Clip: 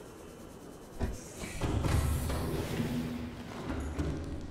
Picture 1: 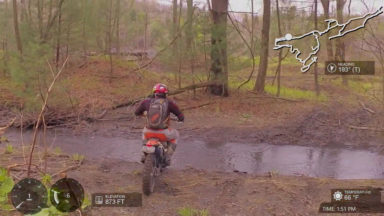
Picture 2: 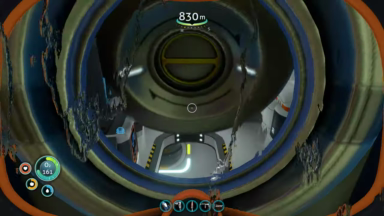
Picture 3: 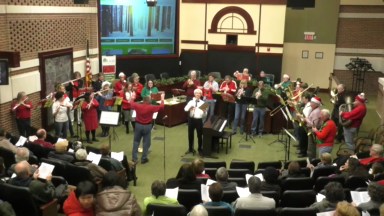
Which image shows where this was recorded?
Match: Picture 2